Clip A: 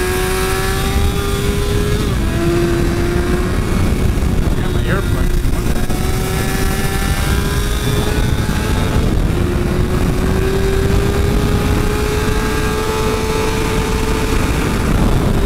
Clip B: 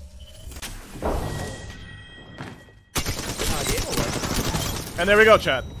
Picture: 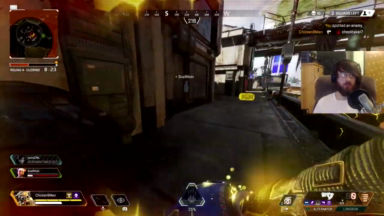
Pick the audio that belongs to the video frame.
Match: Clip B